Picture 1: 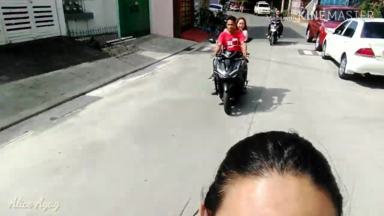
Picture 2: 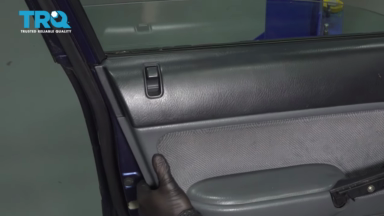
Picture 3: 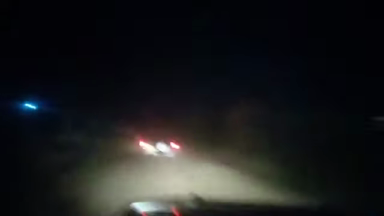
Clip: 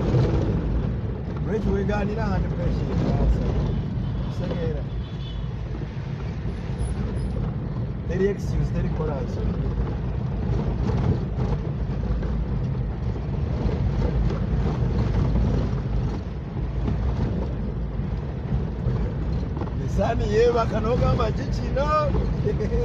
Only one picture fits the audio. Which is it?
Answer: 3